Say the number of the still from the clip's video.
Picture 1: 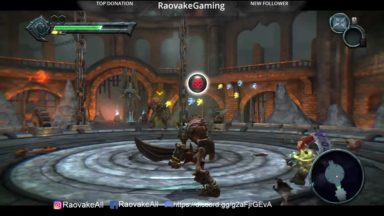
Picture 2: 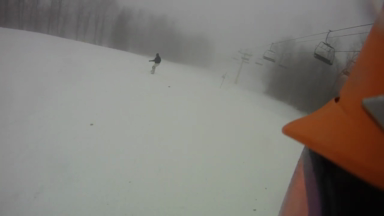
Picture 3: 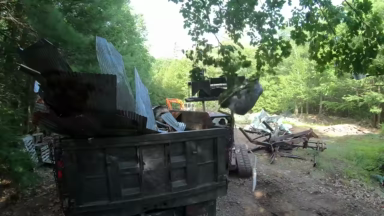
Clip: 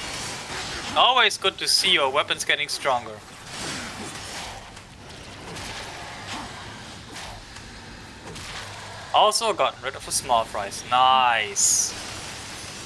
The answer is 1